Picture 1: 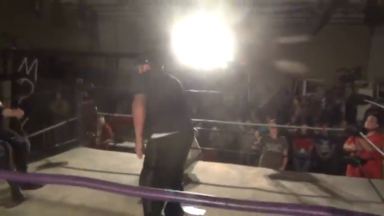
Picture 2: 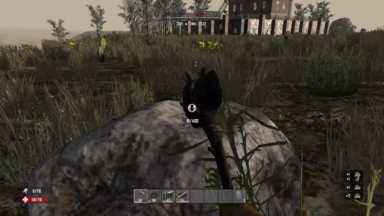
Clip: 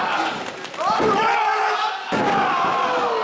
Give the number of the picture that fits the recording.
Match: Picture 1